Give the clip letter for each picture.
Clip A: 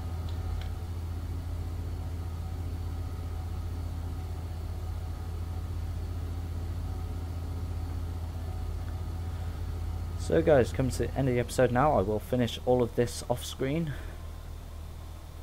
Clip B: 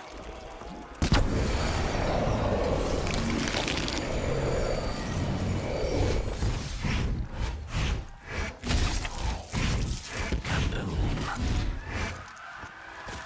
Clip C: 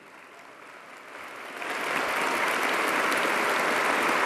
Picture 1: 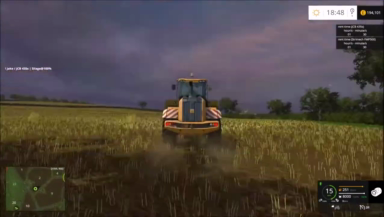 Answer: A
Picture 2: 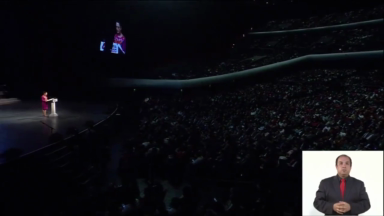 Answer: C